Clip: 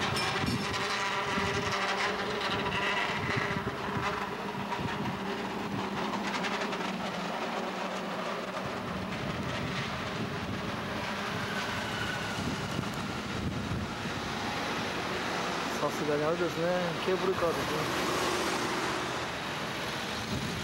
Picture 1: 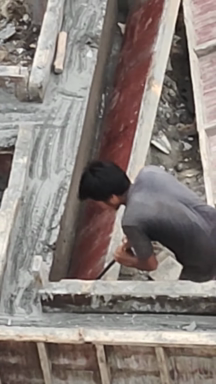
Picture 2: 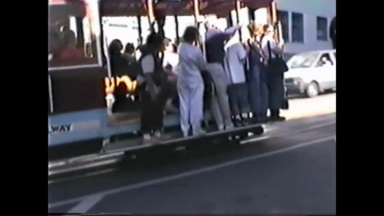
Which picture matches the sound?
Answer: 2